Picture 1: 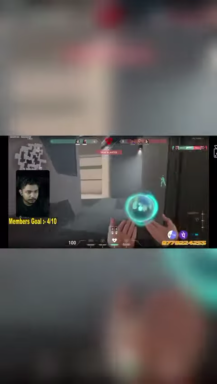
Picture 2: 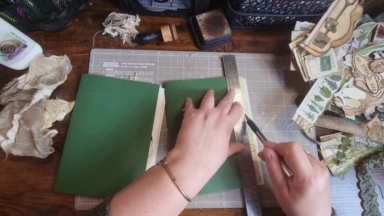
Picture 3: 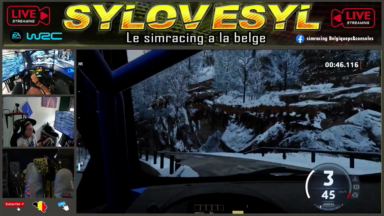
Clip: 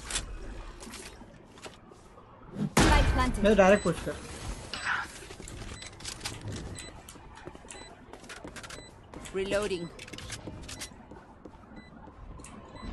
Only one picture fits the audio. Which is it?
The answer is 1